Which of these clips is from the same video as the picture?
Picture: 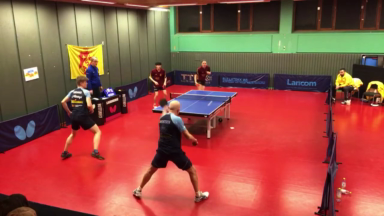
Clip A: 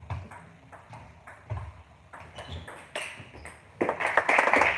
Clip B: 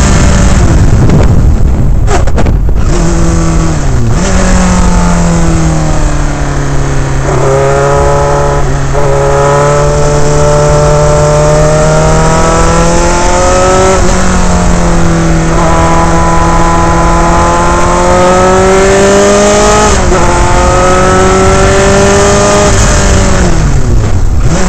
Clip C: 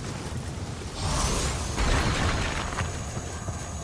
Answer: A